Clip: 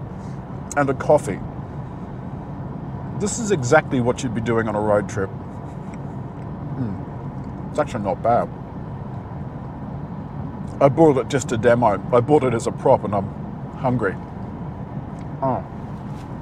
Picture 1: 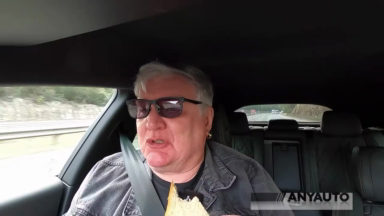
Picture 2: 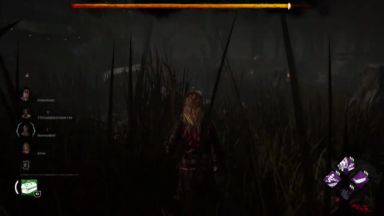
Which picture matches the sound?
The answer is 1